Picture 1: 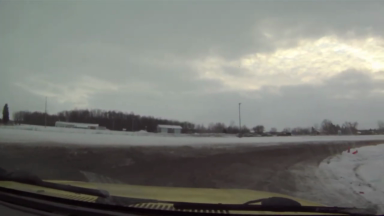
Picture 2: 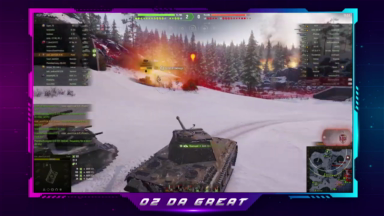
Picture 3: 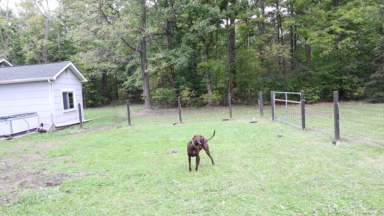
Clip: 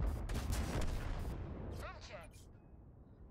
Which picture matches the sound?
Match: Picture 2